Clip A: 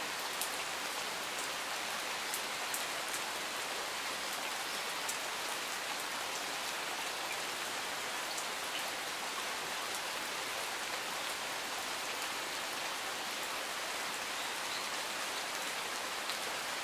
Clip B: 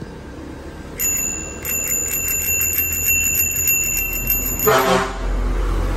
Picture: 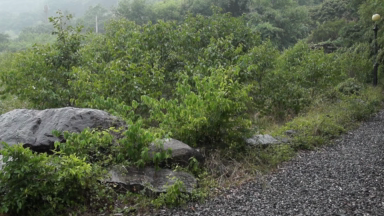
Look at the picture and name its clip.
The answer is A